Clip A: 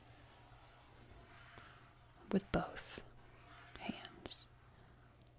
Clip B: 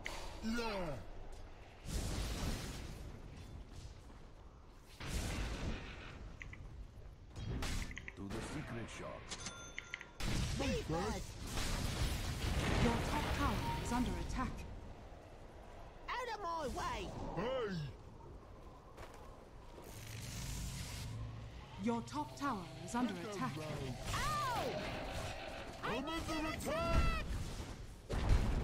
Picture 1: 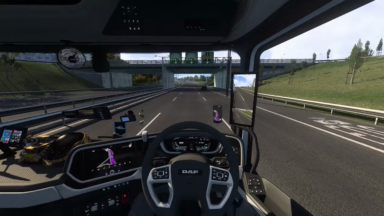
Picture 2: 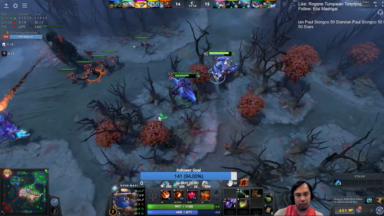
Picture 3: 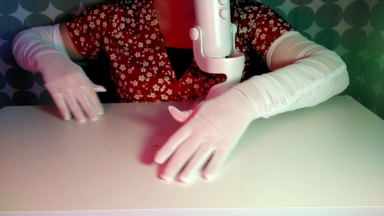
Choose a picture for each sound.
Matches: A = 3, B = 2